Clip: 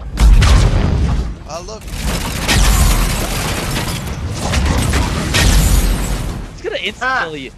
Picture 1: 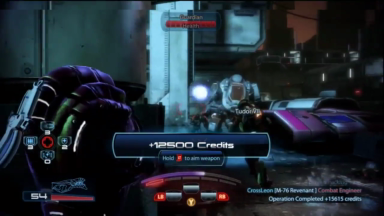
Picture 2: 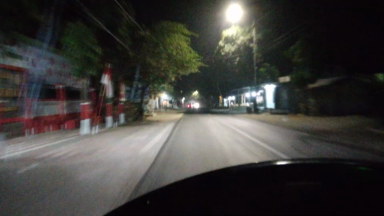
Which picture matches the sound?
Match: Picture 1